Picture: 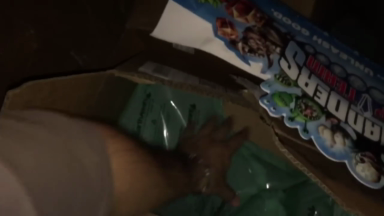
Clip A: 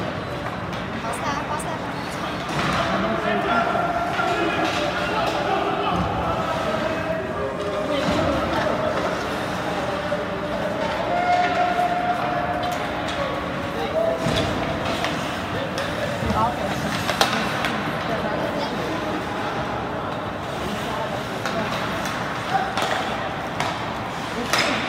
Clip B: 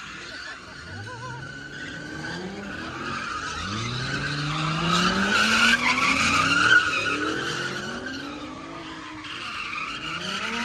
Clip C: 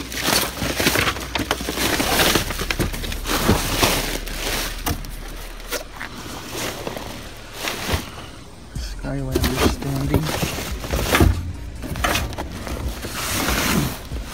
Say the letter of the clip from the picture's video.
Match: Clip C